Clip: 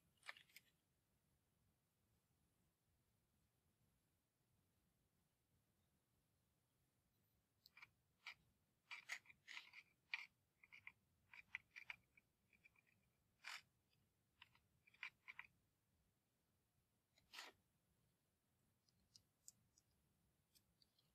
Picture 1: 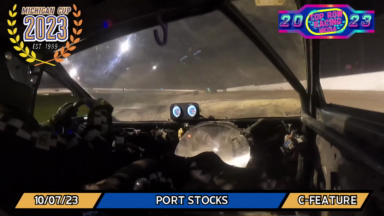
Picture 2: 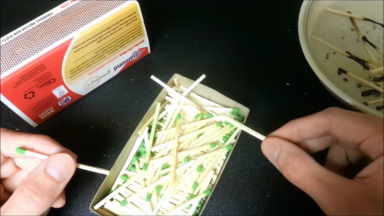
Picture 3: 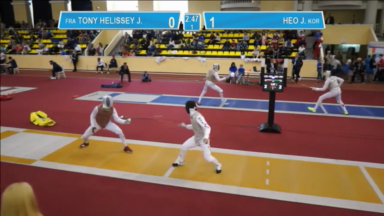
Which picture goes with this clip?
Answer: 2